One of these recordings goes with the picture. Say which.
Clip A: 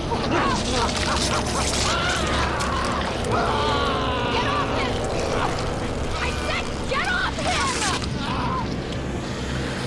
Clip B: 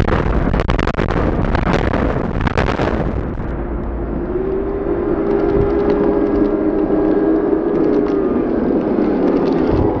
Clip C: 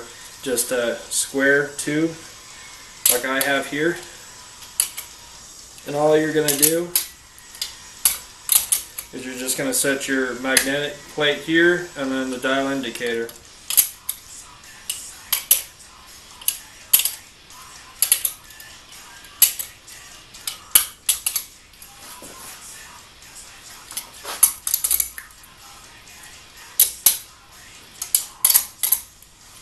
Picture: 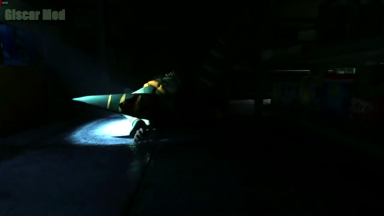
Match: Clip A